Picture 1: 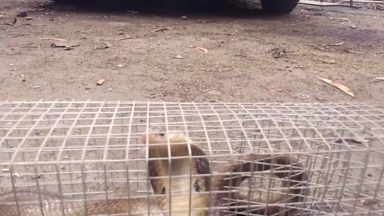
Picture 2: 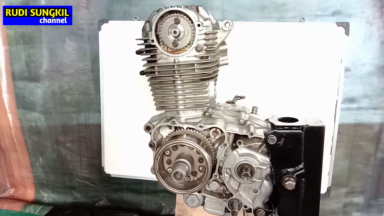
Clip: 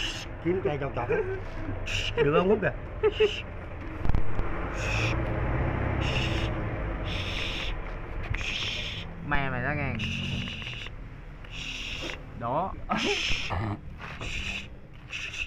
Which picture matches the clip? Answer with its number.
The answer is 1